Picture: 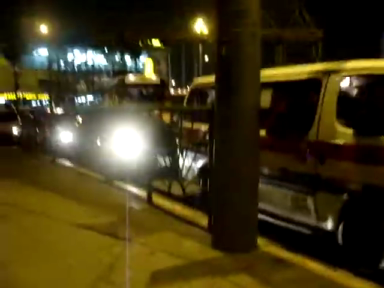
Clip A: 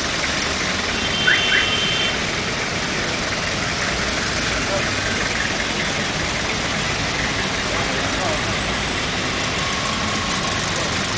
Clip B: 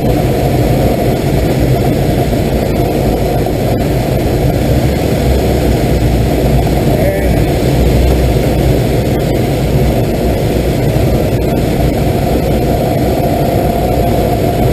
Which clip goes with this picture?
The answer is A